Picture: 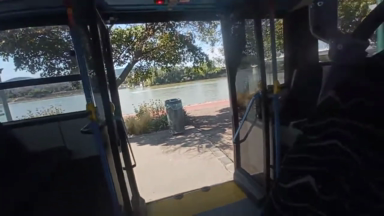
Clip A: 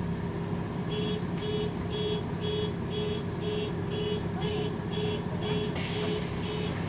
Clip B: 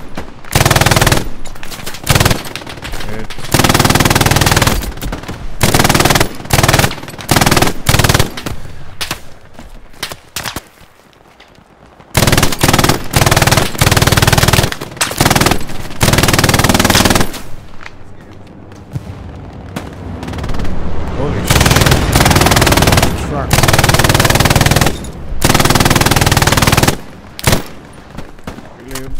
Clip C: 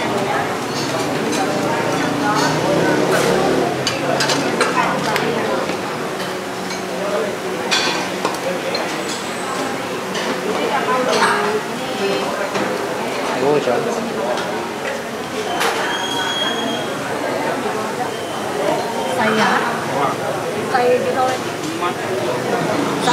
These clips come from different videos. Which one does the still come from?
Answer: A